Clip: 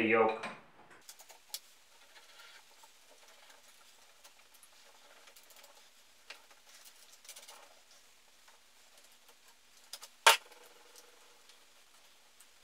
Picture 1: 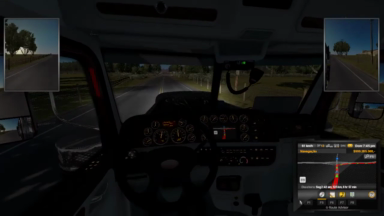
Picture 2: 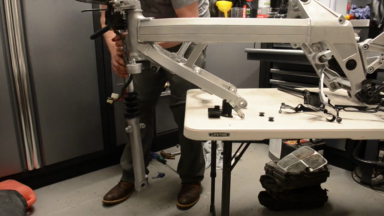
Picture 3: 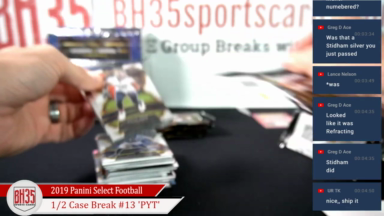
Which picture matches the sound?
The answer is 2